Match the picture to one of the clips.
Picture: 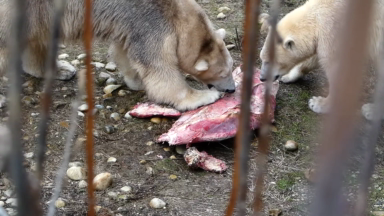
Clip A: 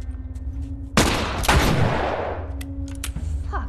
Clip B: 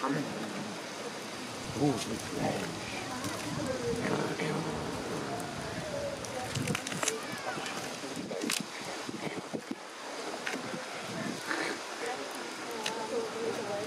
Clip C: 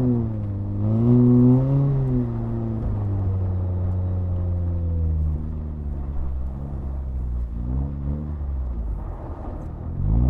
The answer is B